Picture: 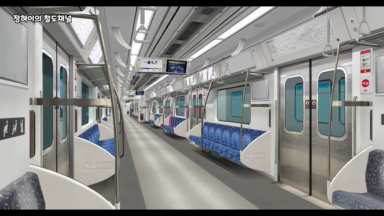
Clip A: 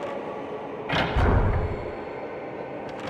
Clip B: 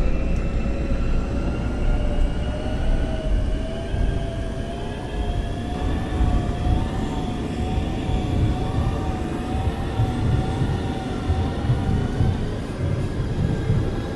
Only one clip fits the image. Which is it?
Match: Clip B